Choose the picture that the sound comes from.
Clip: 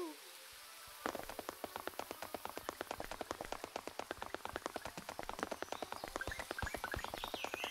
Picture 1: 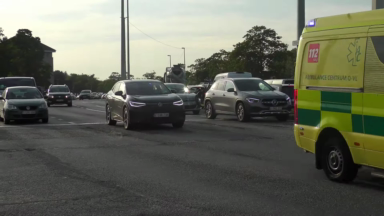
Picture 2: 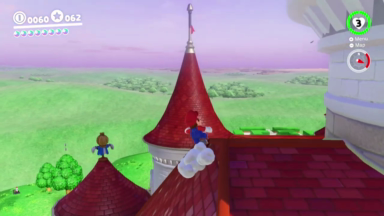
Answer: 2